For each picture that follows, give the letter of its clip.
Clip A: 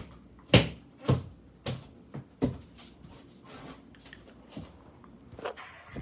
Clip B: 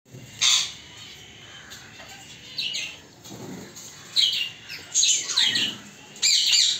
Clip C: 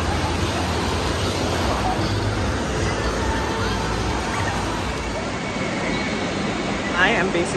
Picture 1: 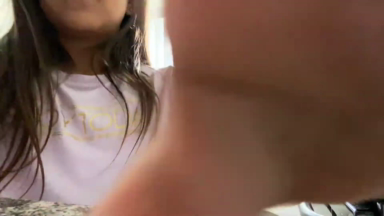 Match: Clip A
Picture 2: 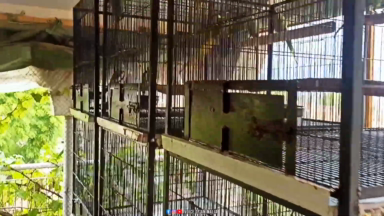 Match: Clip B